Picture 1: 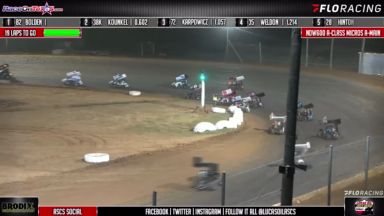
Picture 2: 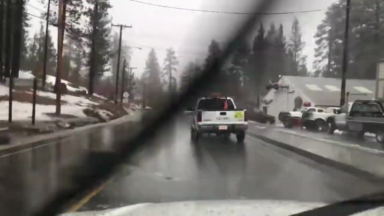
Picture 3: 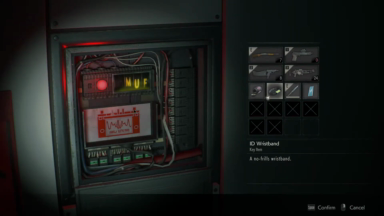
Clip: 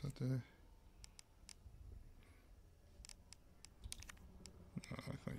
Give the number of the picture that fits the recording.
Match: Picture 3